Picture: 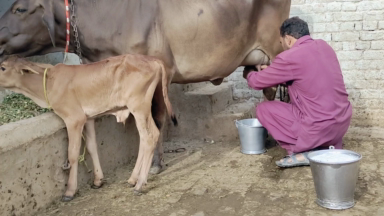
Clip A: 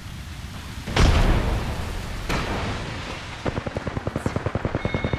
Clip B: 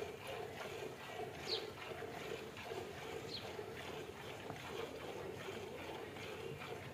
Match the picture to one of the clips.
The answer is B